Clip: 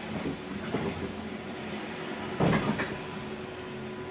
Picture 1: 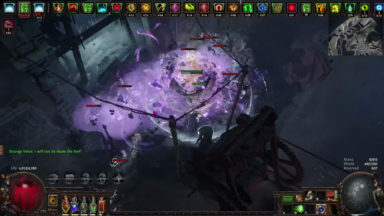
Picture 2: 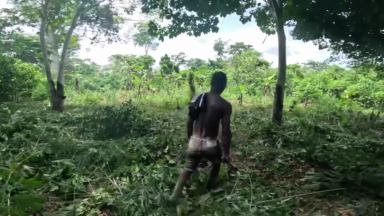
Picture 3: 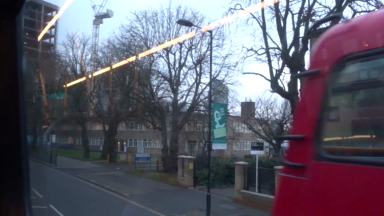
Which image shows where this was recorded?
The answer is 3